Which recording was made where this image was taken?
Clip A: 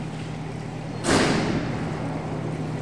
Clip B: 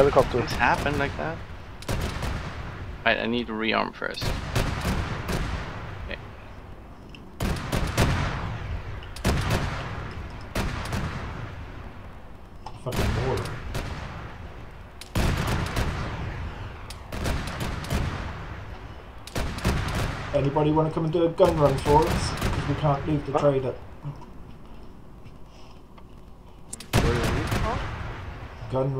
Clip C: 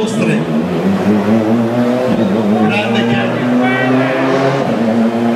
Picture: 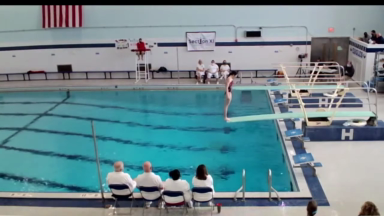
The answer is A